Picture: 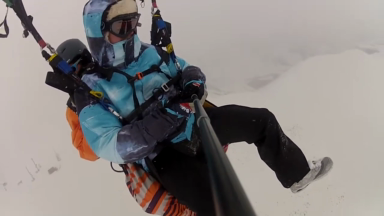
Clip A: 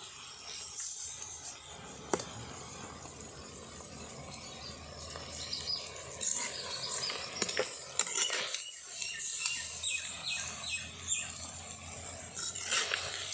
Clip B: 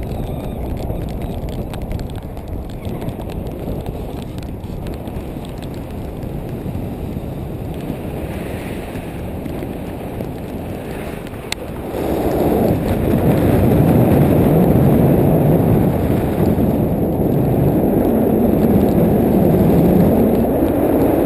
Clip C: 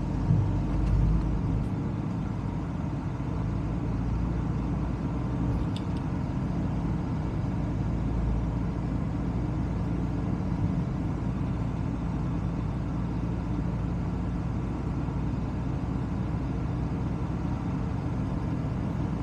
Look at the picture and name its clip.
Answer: B